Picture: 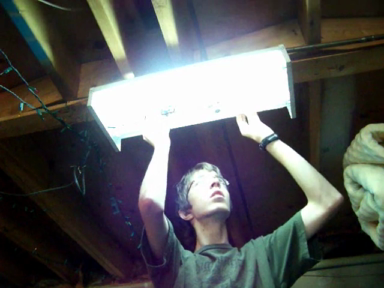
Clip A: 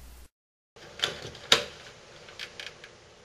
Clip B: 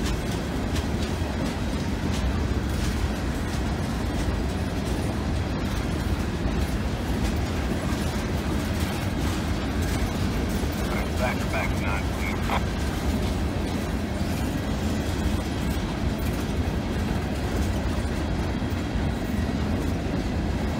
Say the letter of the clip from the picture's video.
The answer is A